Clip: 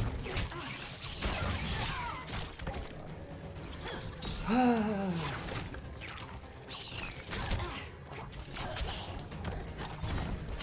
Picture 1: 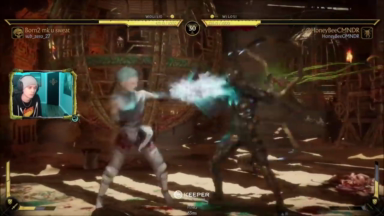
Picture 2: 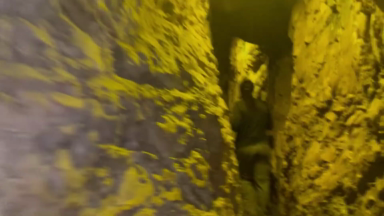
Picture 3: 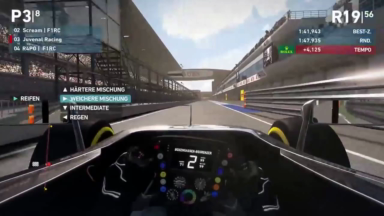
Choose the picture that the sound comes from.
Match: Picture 1